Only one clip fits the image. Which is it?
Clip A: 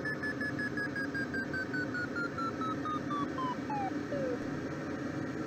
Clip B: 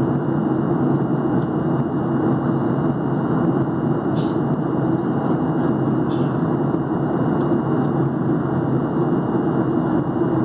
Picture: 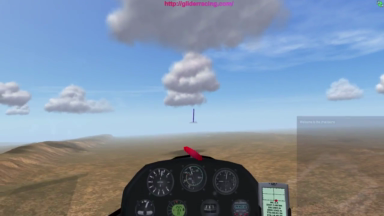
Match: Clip A